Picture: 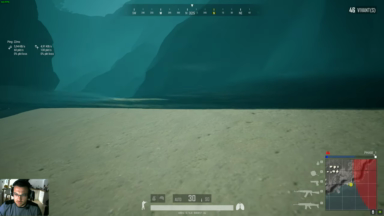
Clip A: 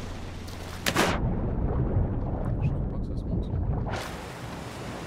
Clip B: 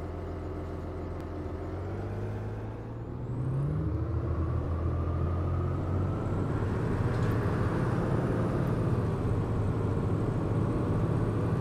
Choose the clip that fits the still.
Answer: A